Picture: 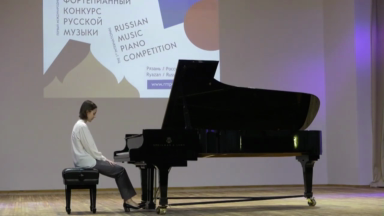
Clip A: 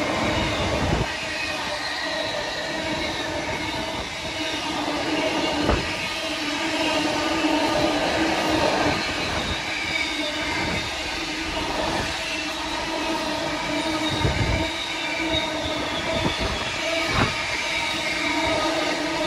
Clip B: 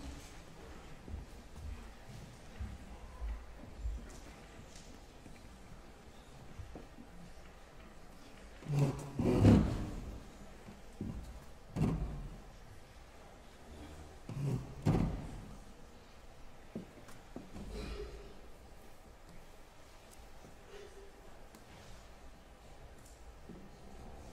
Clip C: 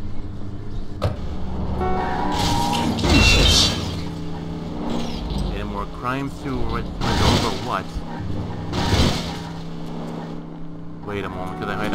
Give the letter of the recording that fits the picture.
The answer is B